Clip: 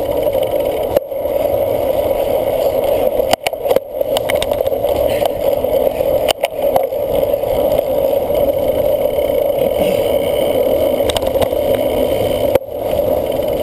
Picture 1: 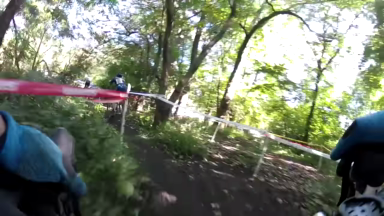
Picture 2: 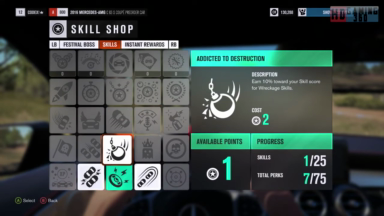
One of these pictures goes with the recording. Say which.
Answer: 1